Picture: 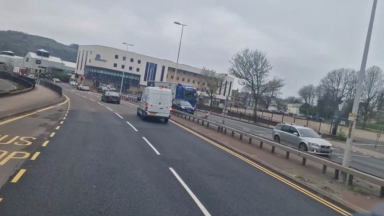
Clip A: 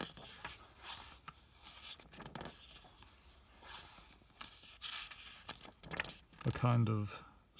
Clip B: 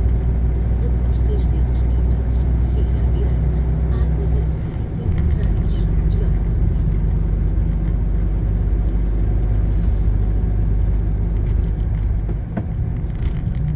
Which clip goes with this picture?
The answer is B